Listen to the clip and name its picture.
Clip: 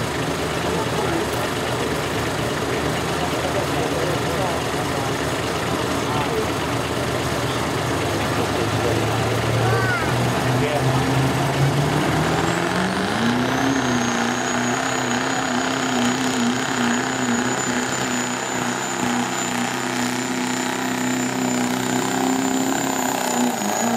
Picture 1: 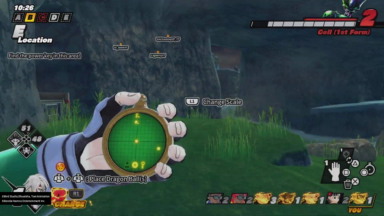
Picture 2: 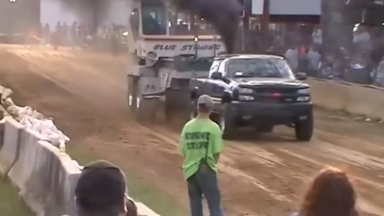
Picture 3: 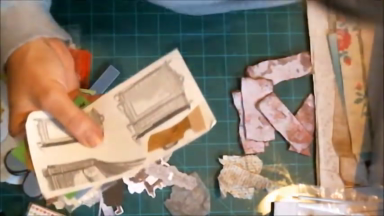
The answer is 2